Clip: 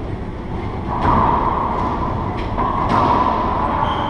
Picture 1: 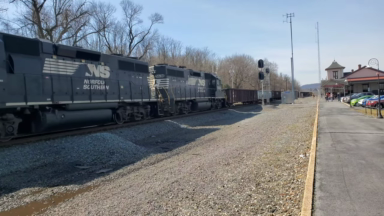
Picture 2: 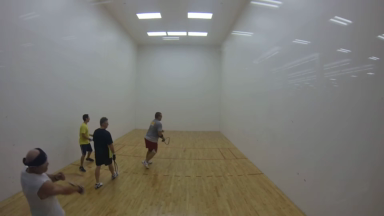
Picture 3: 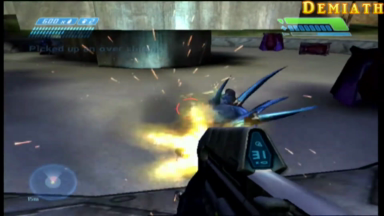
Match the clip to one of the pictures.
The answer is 2